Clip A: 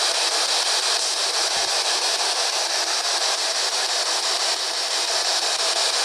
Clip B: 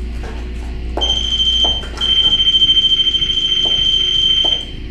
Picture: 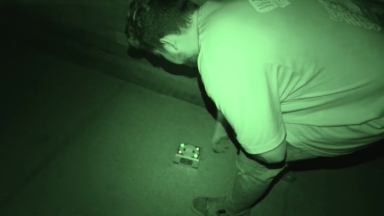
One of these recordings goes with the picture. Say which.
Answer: B